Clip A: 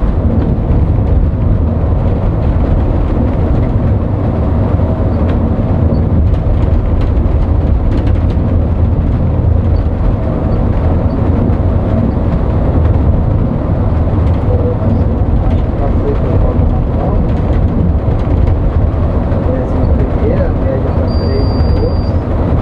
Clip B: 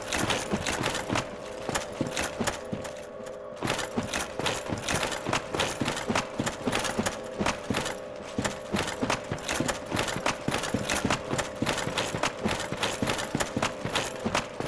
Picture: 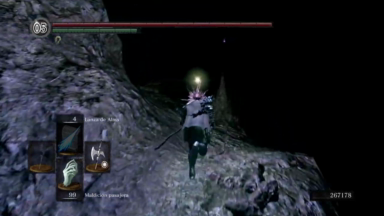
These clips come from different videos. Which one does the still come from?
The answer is B